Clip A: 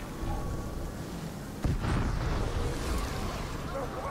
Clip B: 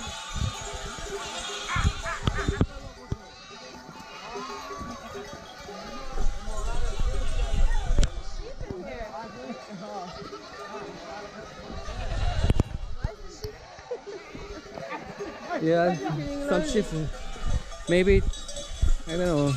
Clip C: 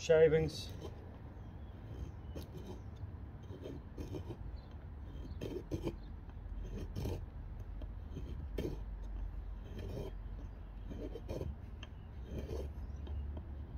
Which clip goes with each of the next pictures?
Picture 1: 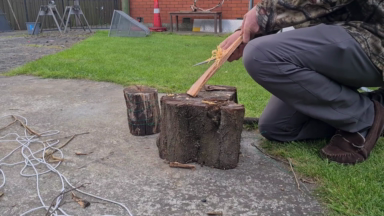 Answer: C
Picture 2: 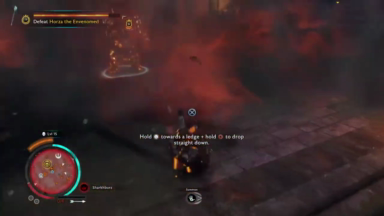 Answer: A